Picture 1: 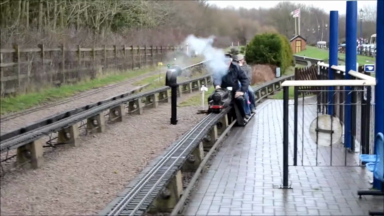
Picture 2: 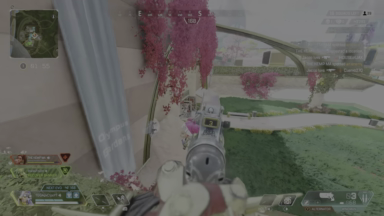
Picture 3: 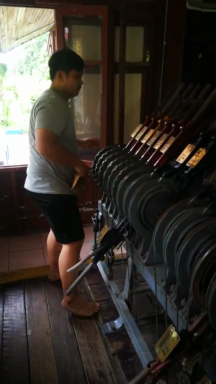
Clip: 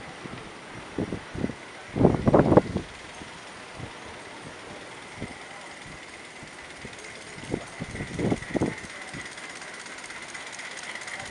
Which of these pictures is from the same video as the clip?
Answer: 1